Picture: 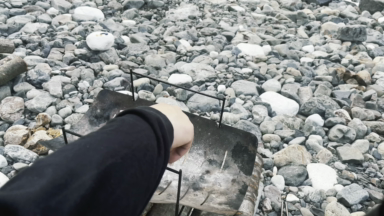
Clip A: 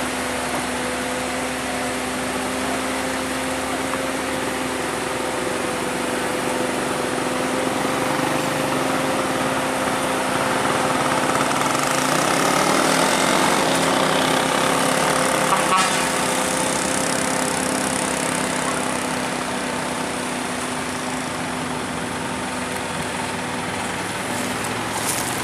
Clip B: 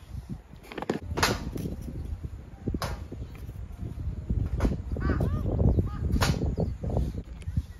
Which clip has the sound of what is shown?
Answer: B